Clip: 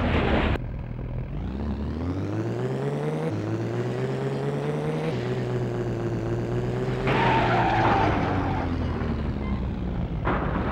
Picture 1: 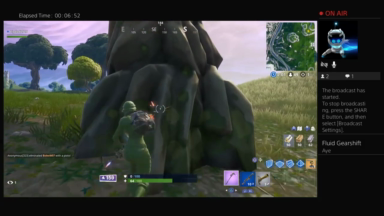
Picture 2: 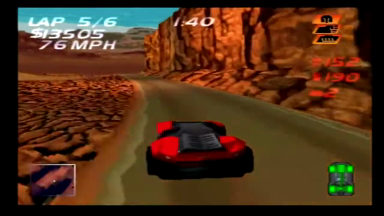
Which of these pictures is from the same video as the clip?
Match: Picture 2